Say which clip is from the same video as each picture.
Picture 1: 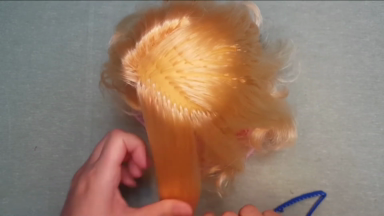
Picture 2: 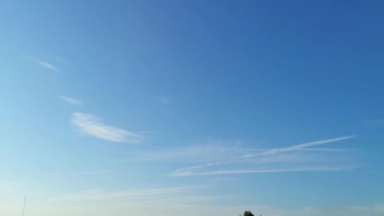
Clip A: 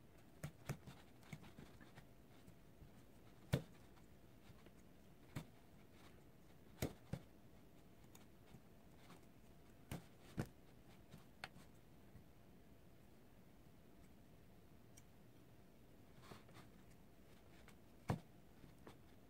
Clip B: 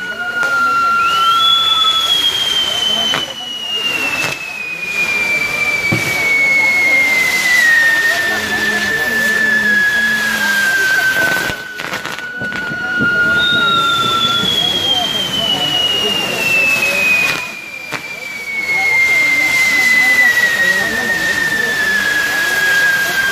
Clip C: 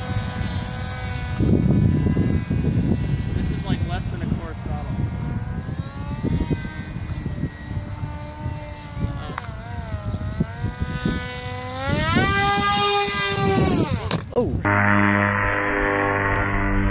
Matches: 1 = A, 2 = C